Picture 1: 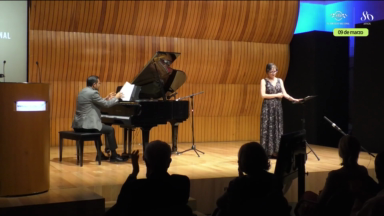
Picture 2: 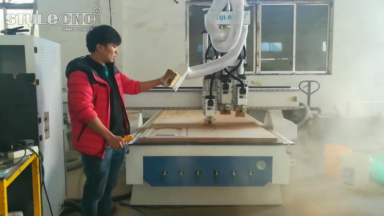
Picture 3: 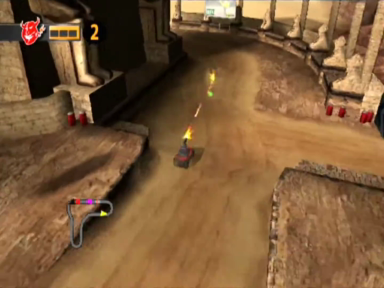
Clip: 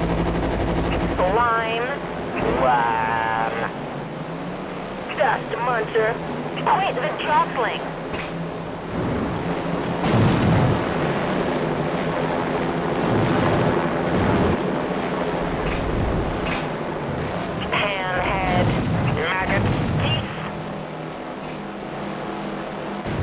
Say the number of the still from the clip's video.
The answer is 3